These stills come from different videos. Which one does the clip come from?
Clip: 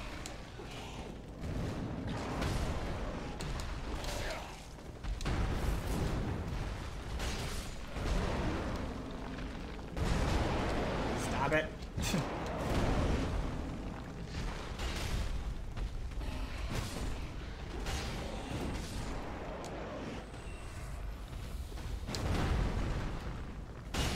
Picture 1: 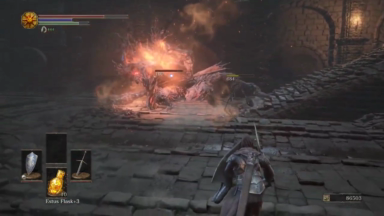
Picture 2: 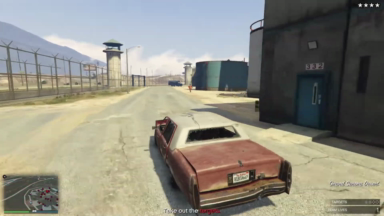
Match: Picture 1